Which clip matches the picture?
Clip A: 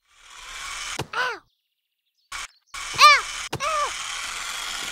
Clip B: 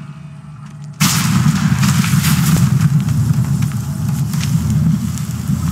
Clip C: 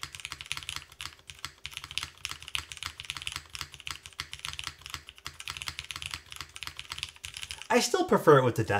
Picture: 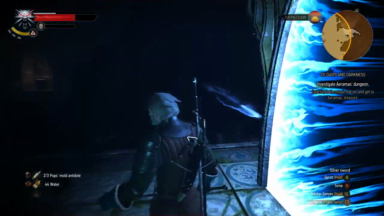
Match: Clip B